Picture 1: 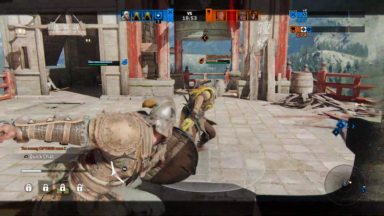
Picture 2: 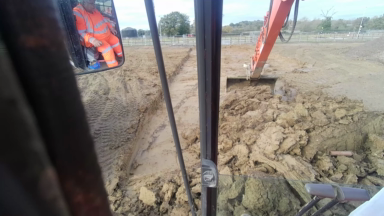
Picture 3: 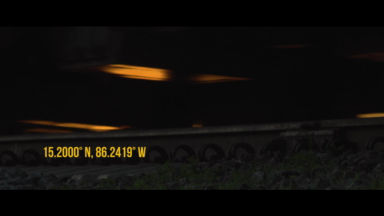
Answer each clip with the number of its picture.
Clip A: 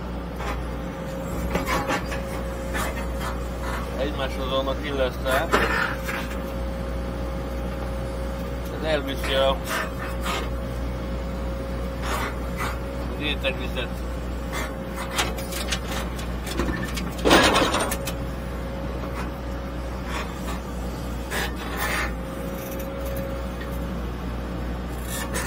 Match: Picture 2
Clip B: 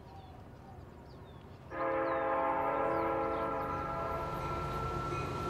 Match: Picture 3